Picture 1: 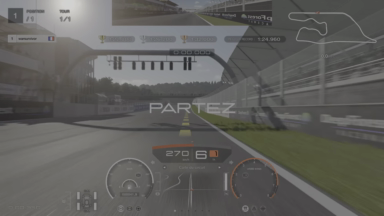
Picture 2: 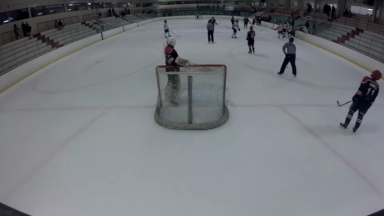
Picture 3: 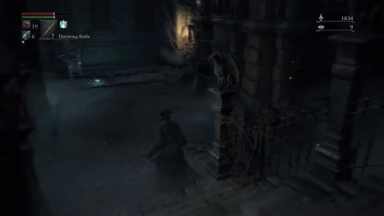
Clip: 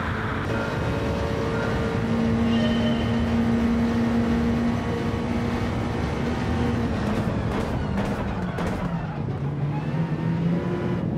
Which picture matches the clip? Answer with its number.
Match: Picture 1